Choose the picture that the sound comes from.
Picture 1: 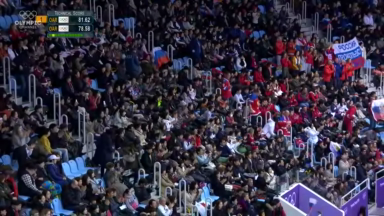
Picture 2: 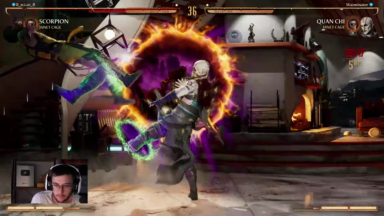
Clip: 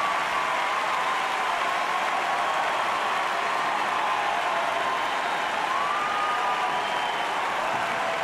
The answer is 1